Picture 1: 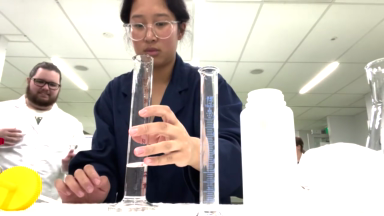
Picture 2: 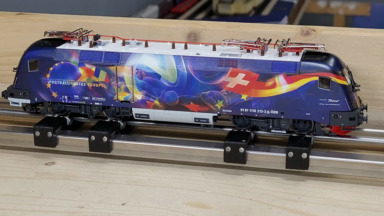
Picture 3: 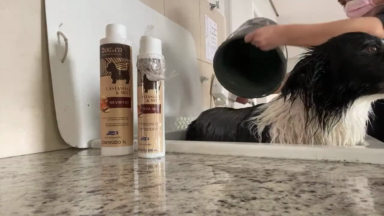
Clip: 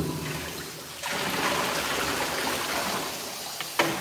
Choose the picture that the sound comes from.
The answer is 3